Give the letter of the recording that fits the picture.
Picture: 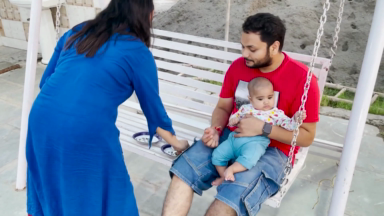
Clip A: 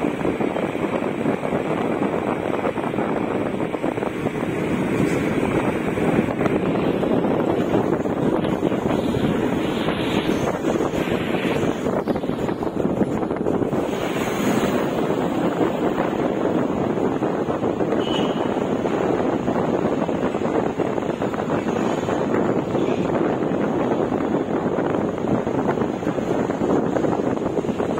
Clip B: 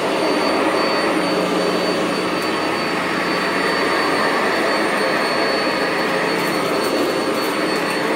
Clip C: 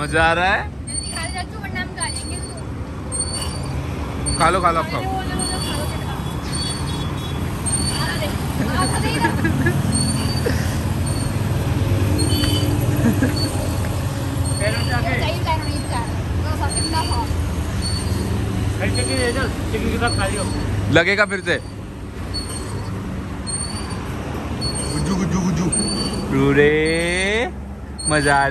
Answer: C